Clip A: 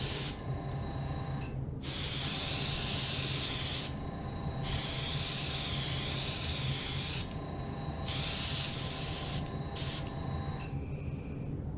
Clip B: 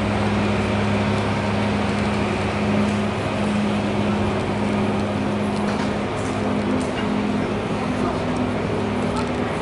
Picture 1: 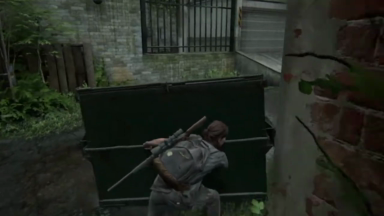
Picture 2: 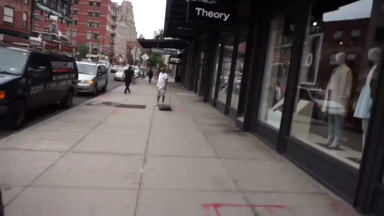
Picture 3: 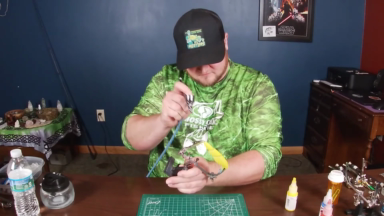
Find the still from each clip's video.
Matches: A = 3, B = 2